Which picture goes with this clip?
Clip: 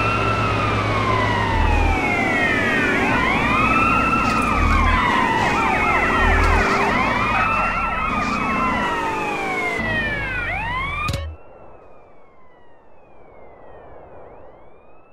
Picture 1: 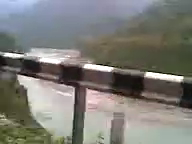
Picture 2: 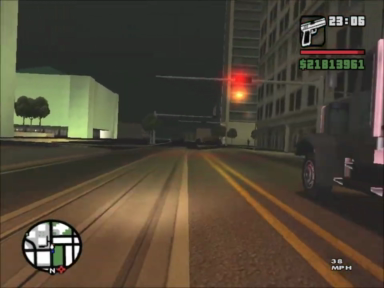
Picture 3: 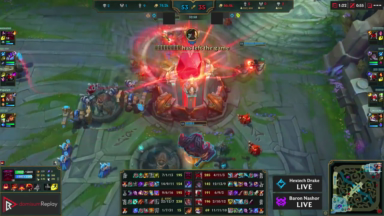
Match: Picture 2